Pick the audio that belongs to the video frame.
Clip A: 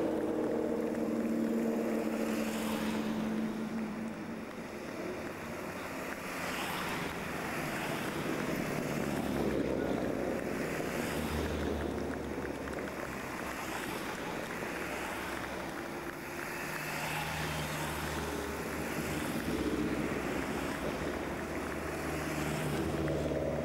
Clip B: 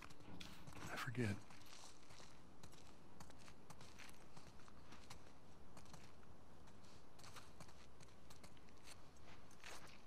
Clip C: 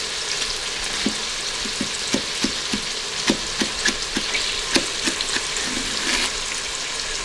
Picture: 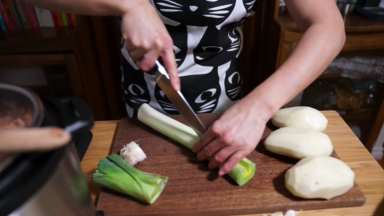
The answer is C